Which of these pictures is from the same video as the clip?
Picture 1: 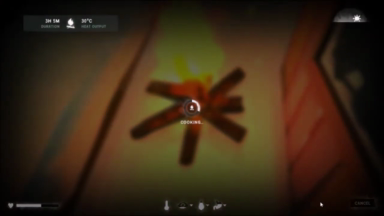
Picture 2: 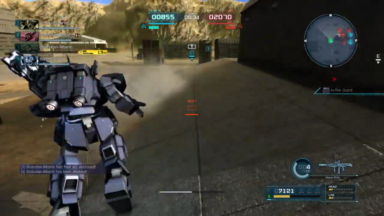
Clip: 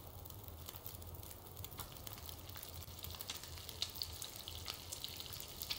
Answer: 1